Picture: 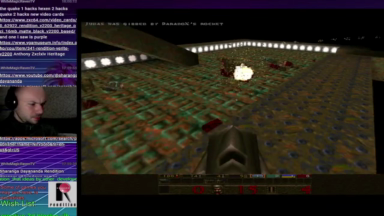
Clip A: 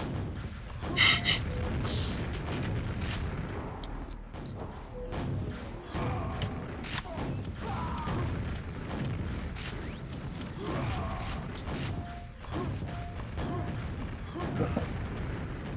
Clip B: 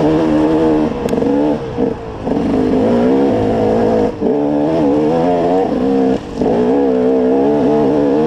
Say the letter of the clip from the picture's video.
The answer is A